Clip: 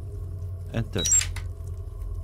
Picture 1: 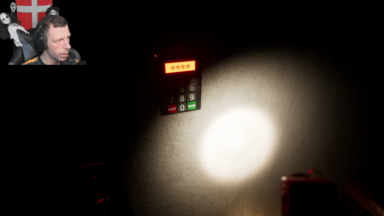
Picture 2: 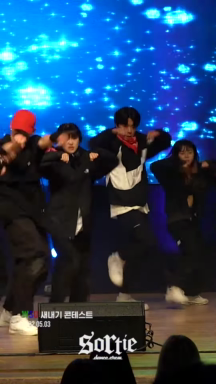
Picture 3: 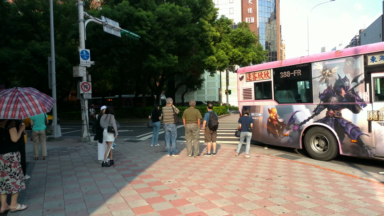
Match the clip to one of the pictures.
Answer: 1